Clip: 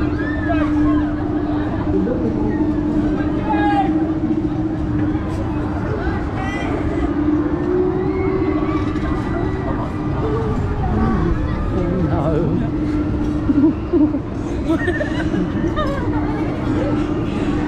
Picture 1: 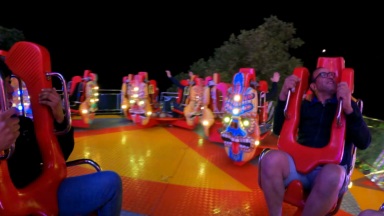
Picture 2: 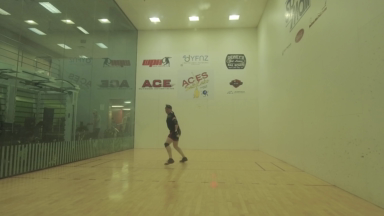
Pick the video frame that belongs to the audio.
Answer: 1